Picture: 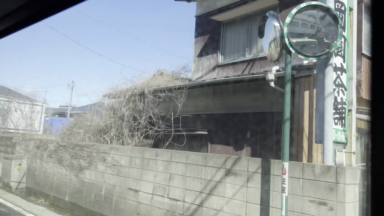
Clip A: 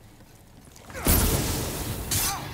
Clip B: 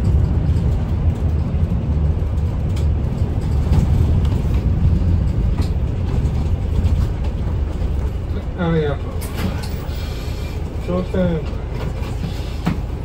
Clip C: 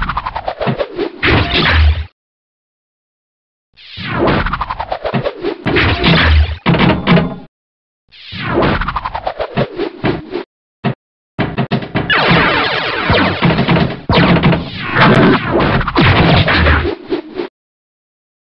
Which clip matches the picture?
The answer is B